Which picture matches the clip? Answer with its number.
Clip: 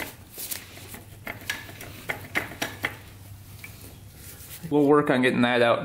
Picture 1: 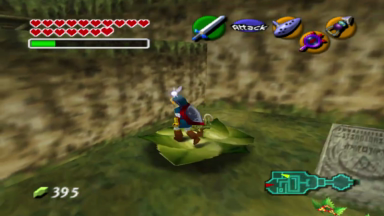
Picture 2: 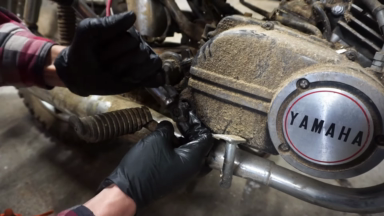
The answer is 2